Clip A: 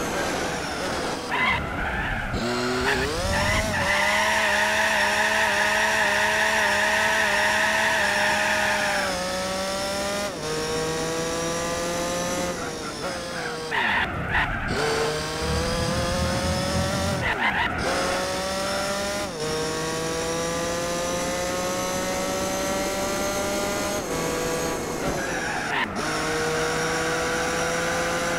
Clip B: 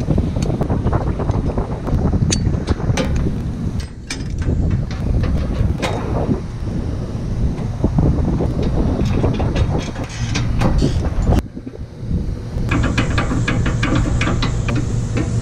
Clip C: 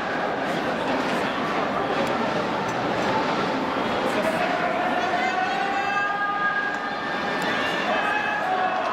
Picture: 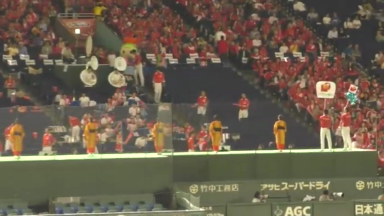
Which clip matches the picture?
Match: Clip C